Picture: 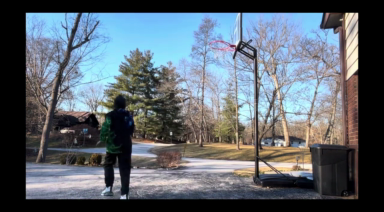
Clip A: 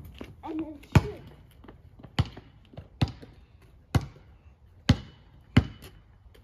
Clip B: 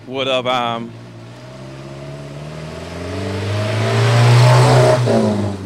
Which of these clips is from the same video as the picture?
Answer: A